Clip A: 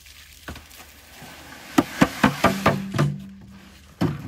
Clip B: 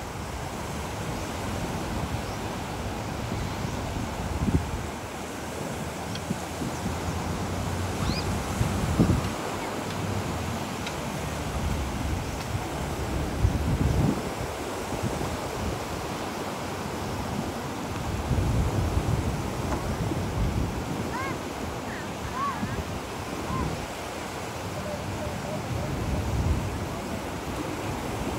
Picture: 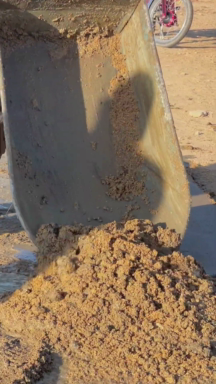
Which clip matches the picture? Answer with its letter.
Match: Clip A